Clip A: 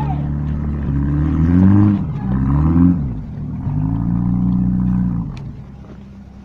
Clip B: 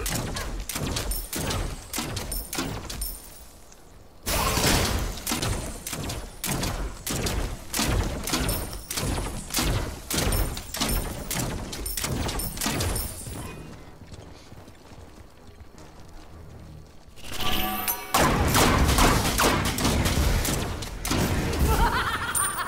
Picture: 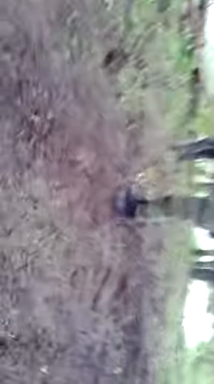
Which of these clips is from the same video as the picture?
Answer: A